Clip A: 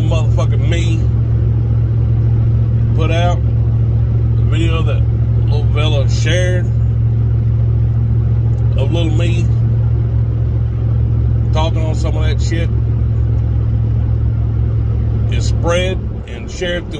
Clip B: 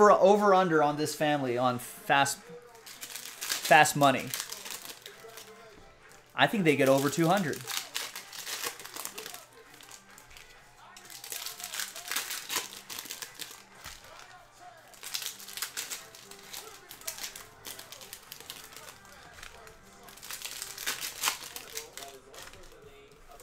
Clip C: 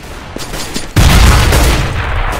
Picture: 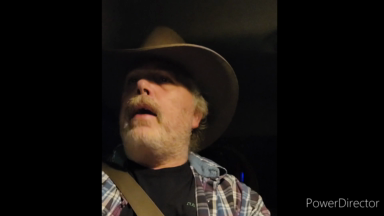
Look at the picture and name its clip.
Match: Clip A